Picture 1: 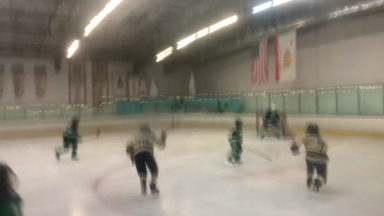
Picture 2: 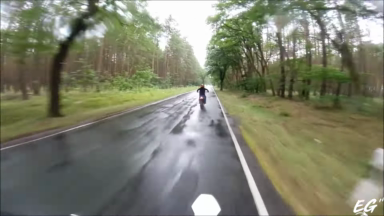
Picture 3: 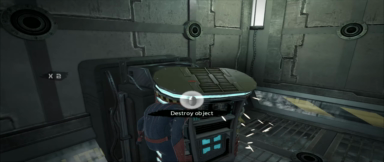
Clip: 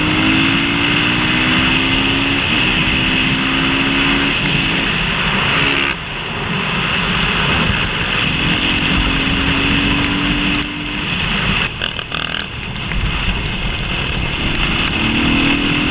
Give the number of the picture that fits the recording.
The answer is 2